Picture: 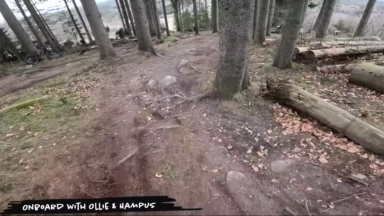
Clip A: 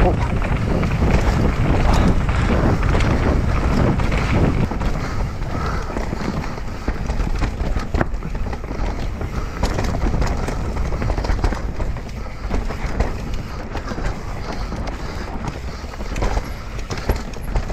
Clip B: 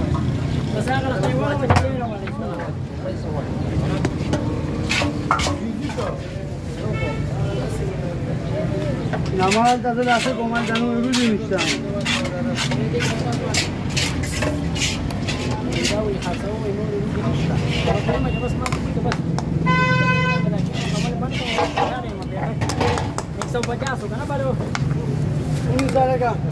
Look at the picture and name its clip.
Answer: A